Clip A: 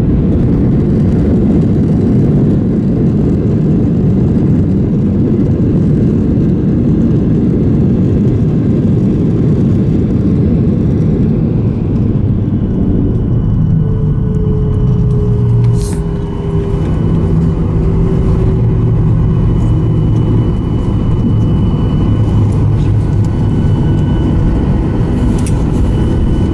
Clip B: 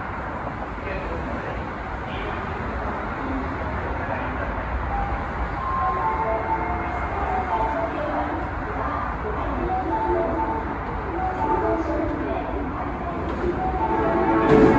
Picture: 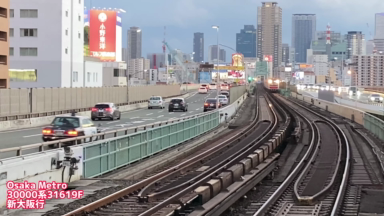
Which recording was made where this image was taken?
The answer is B